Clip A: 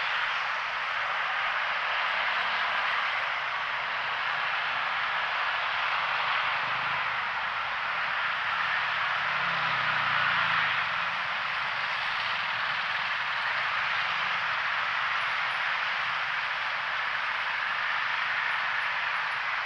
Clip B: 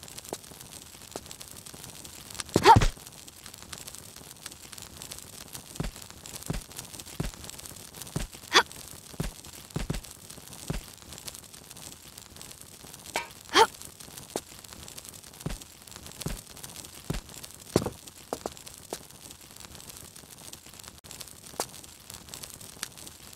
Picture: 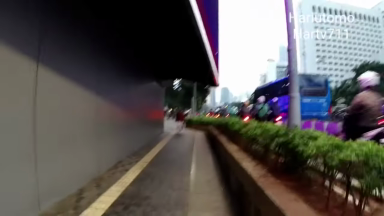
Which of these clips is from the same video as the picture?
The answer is A